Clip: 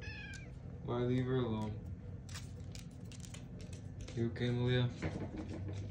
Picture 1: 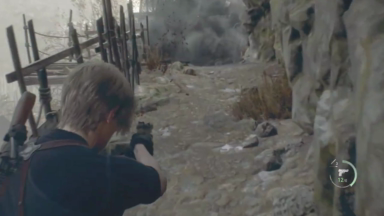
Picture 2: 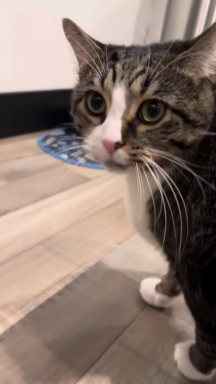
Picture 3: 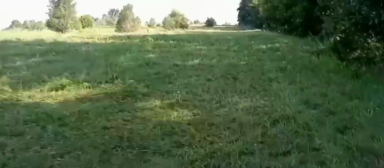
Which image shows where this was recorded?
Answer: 2